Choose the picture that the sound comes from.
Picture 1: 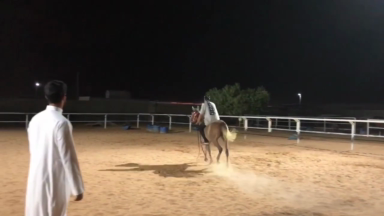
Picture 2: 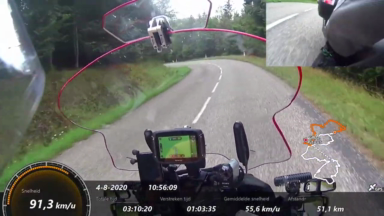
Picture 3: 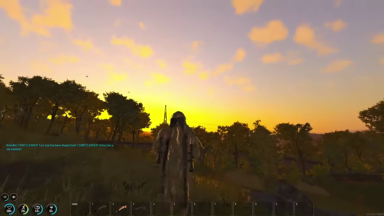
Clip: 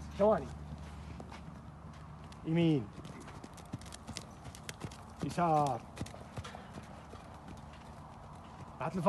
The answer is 1